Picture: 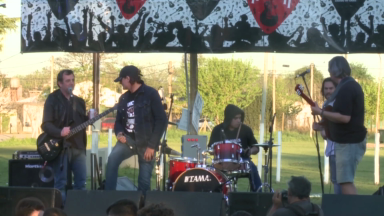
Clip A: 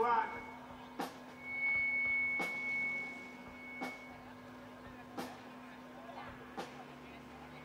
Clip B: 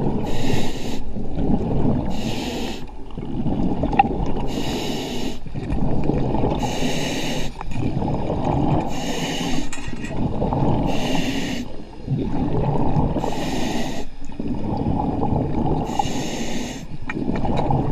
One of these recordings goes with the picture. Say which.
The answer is A